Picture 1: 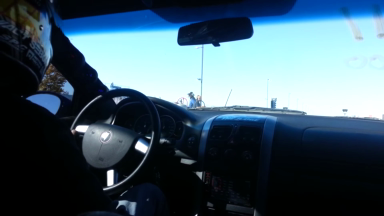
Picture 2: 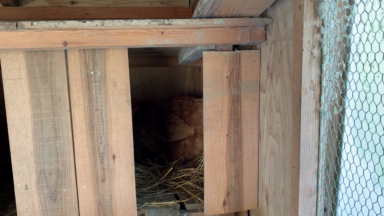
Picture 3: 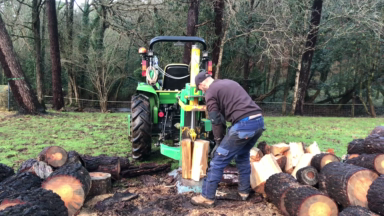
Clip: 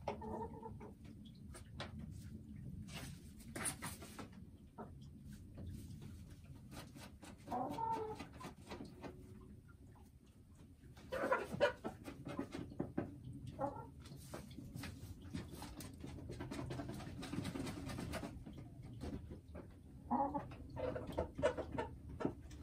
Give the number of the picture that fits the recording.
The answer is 2